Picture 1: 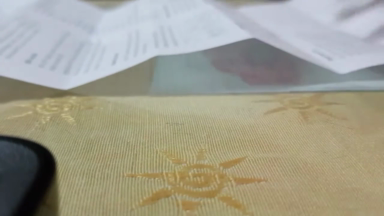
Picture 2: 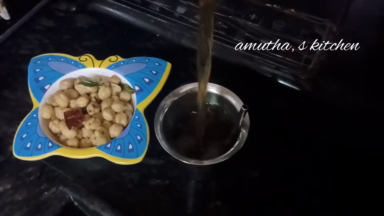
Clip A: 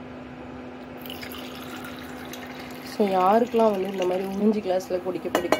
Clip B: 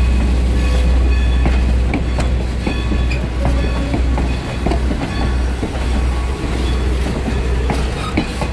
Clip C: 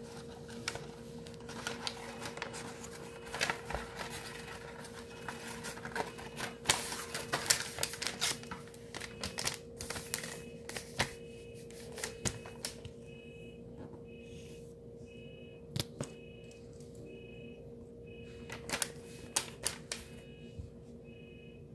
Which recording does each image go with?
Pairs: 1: C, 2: A